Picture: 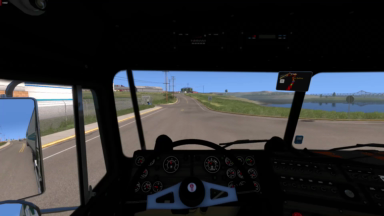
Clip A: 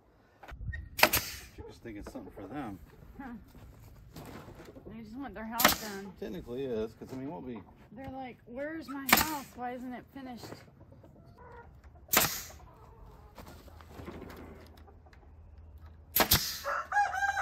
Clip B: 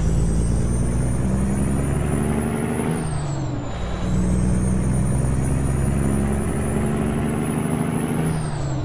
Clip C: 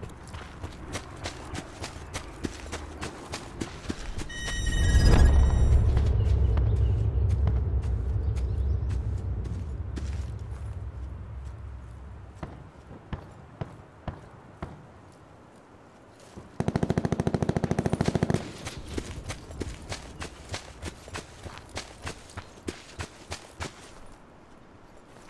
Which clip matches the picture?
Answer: B